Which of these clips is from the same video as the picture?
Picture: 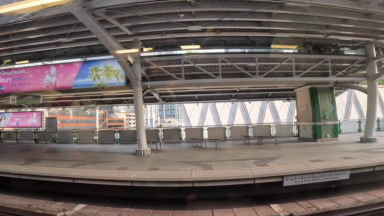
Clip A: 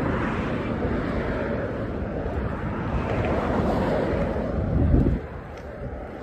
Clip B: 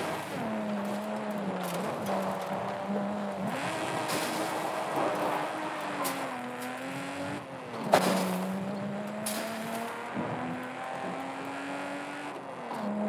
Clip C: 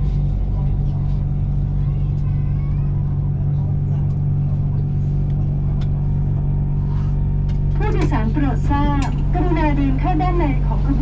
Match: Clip C